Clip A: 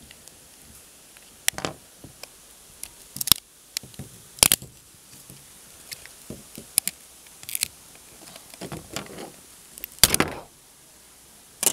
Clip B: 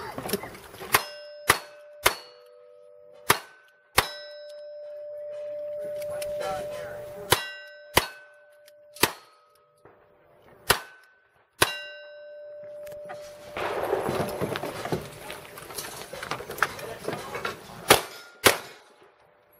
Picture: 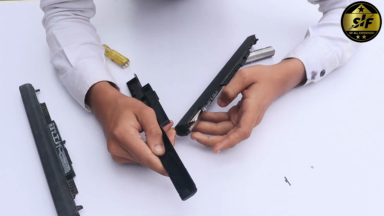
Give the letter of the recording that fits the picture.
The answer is A